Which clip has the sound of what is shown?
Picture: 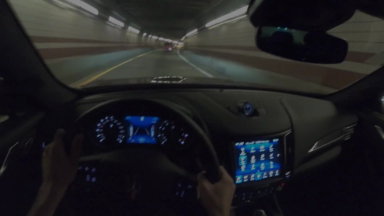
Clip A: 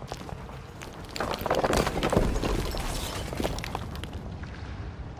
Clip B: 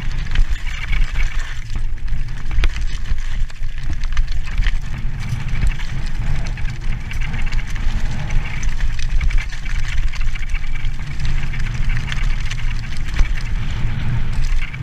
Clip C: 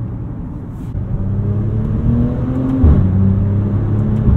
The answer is C